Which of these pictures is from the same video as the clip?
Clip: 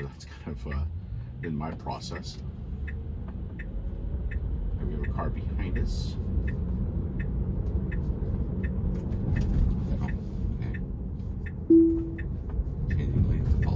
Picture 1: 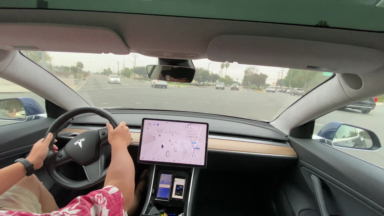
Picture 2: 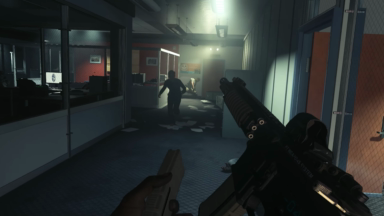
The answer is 1